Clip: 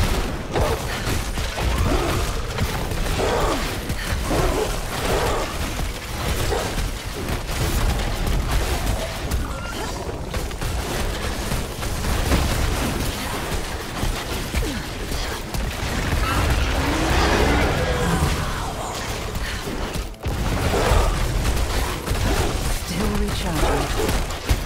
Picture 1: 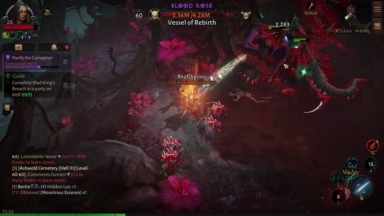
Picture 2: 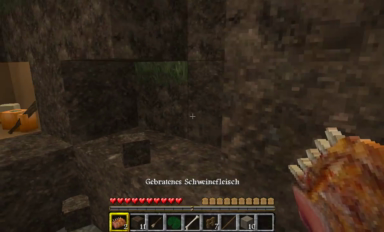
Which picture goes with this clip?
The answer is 1